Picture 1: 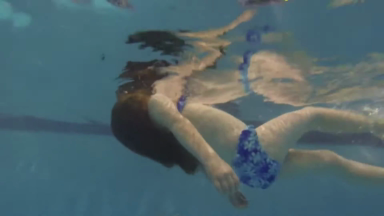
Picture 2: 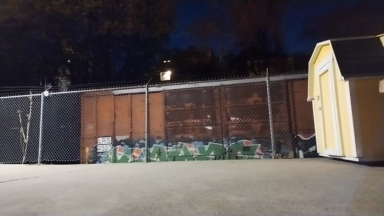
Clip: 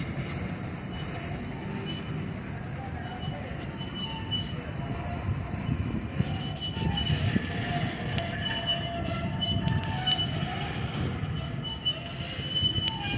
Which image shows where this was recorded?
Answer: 2